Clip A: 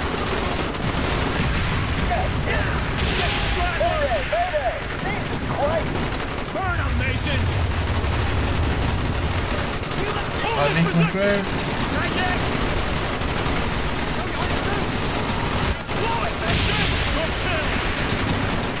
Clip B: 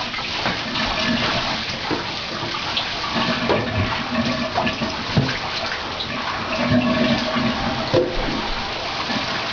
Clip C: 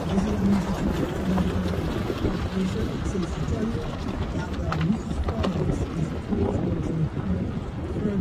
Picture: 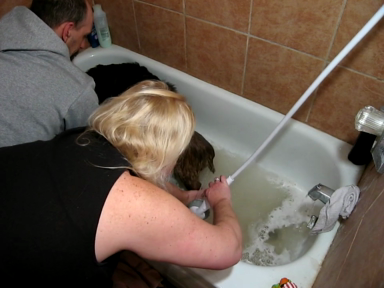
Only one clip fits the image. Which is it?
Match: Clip B